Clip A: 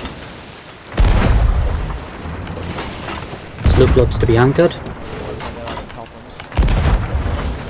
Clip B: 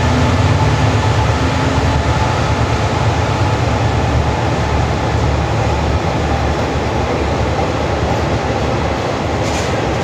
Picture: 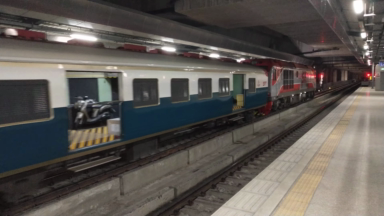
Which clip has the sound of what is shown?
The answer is B